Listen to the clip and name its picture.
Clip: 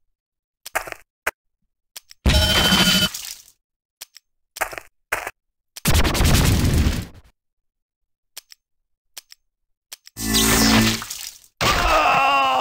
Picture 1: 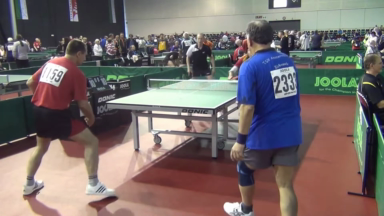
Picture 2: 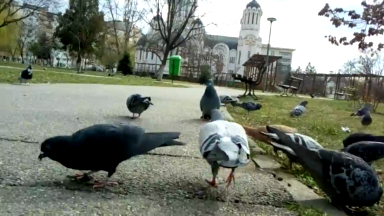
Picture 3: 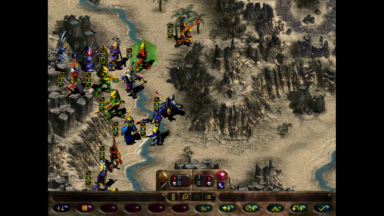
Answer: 3